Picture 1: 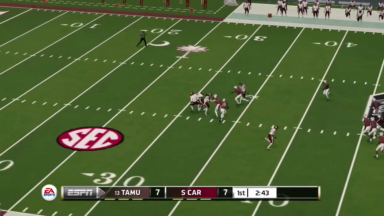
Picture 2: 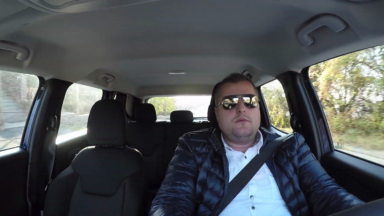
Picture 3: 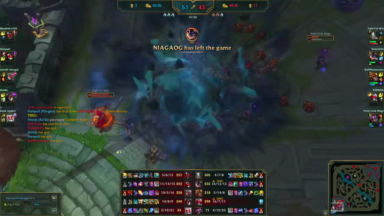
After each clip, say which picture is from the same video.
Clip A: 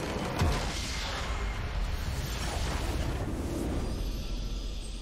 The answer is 3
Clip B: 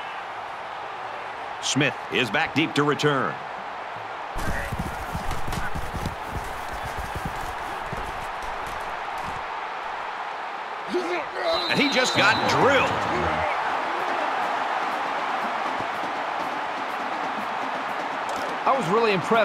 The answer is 1